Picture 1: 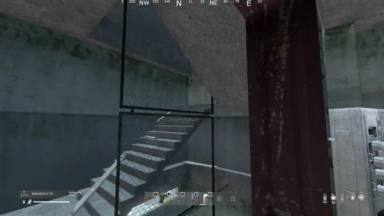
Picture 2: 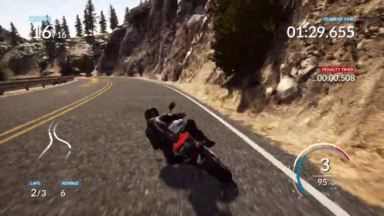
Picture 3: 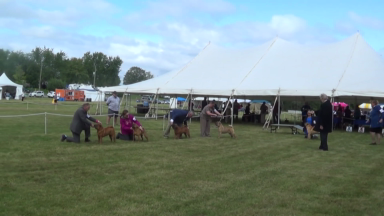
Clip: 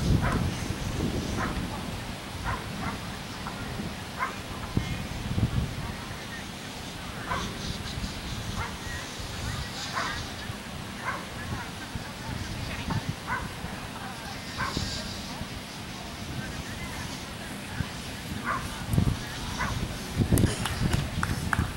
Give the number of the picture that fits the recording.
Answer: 3